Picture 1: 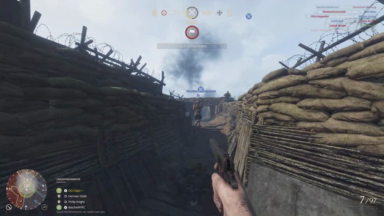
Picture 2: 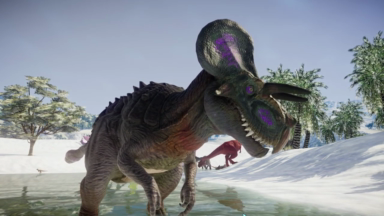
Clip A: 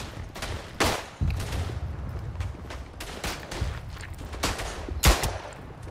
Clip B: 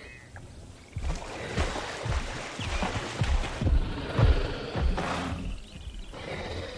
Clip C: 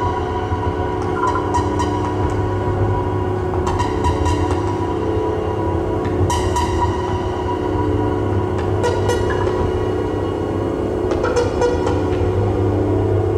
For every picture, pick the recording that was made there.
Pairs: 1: A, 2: B